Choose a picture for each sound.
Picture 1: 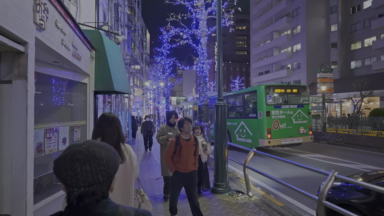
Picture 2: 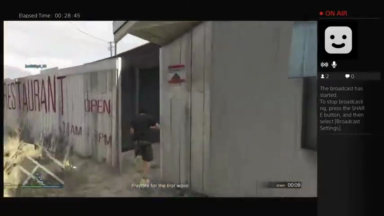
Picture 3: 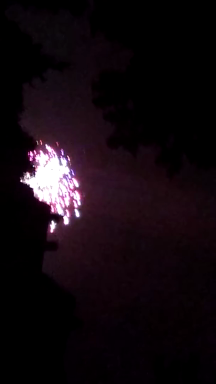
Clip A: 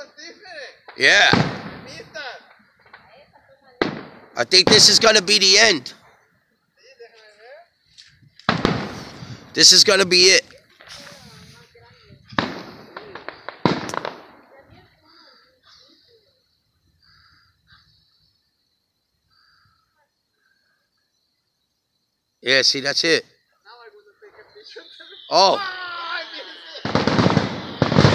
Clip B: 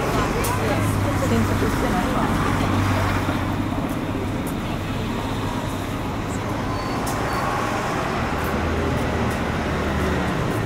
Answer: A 3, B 1